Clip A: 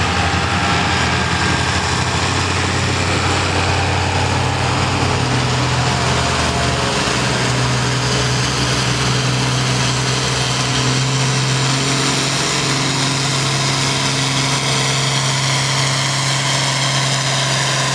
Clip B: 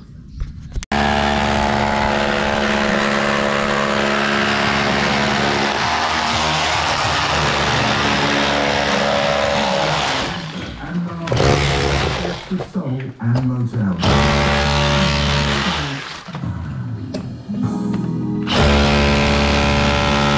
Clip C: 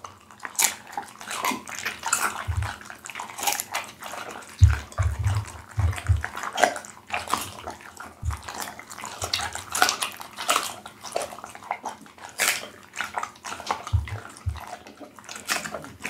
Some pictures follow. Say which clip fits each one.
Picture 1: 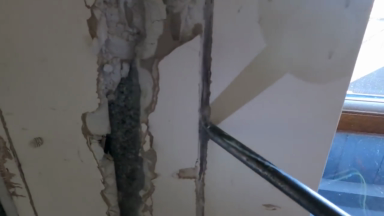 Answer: B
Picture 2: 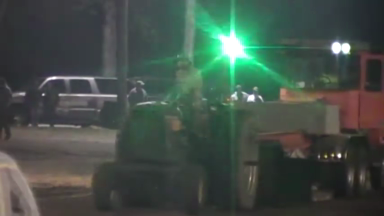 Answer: A